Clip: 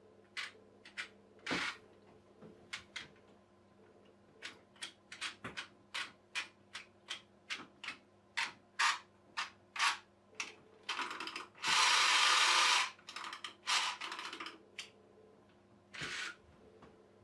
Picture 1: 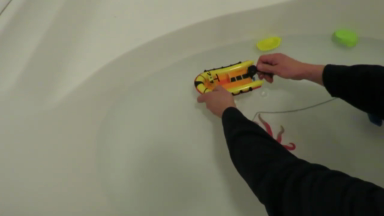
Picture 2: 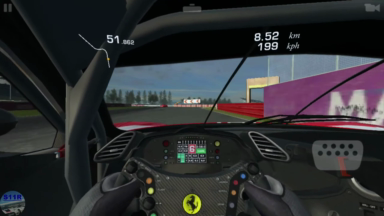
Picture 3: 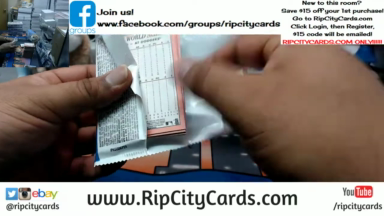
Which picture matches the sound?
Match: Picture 1